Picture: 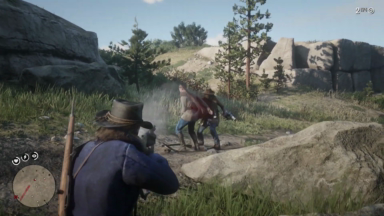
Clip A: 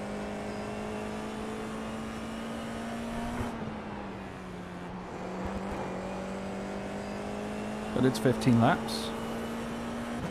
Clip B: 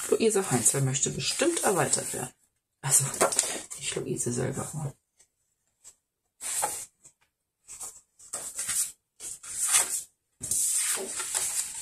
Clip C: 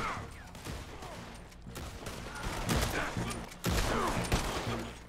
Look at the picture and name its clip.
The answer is C